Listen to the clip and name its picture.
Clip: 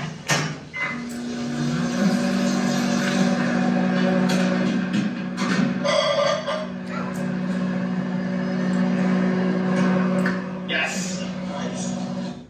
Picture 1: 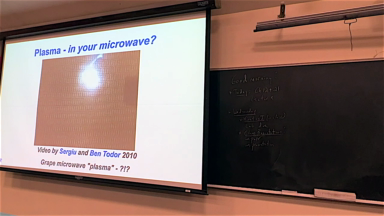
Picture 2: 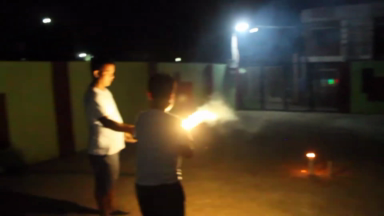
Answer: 1